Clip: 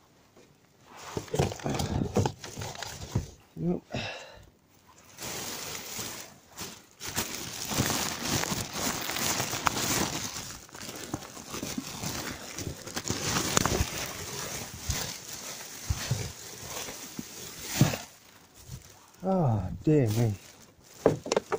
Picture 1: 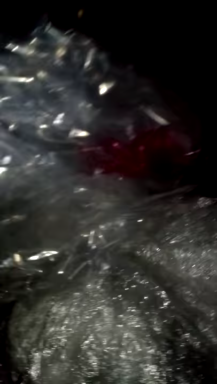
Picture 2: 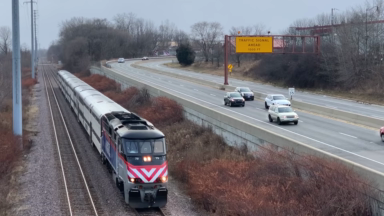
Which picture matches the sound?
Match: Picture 1